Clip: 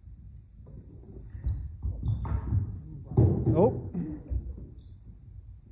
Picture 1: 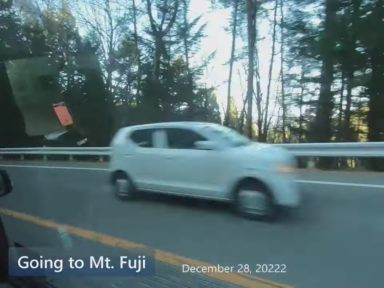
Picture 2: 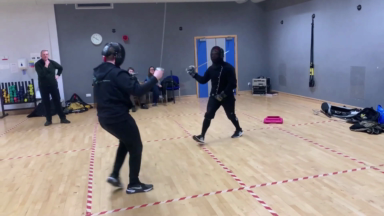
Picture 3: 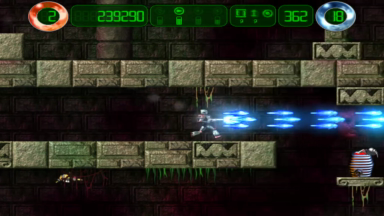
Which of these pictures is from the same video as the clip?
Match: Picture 2